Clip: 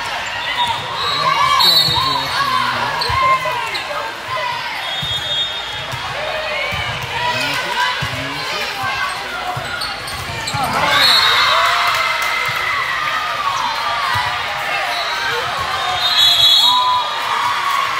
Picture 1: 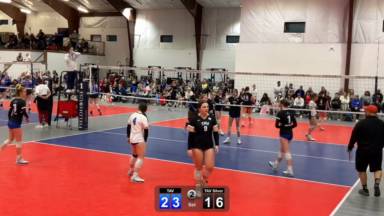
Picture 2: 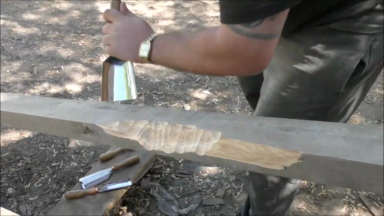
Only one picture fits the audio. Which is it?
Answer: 1